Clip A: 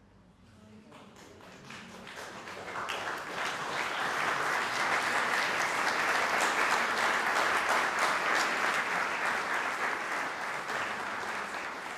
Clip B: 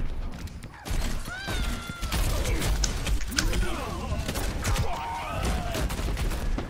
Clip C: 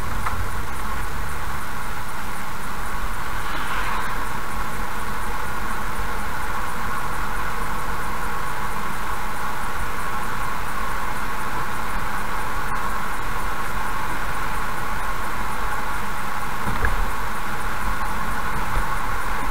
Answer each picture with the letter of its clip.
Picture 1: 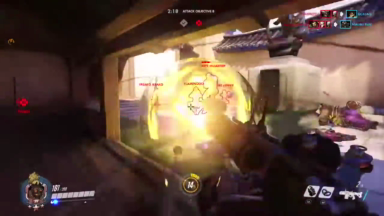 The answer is B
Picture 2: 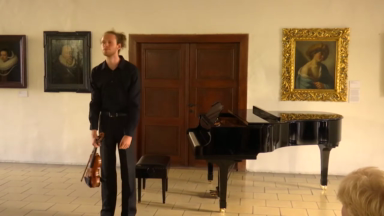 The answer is A